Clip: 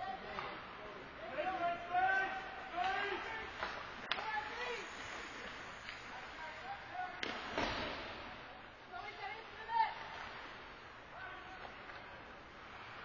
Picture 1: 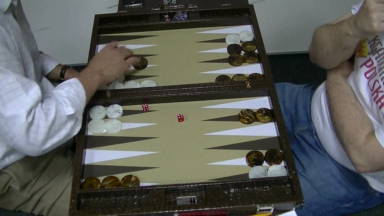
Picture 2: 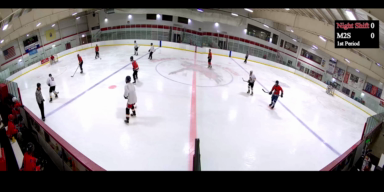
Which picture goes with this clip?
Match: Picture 2